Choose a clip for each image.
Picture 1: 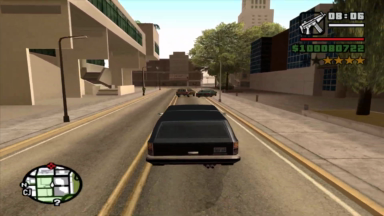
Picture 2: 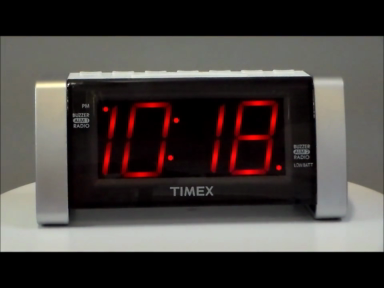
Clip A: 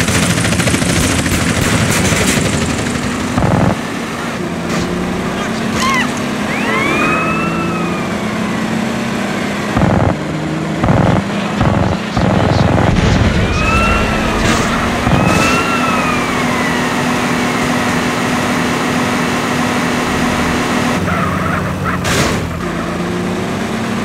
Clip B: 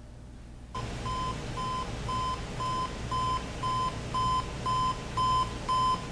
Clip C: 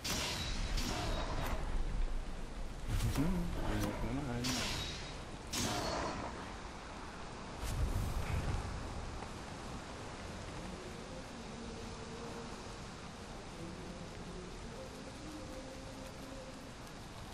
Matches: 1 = A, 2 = B